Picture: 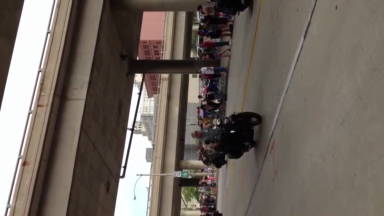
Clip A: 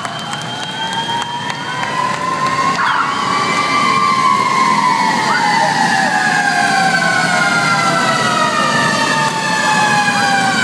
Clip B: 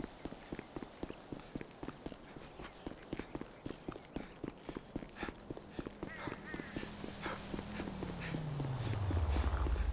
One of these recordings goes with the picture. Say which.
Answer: A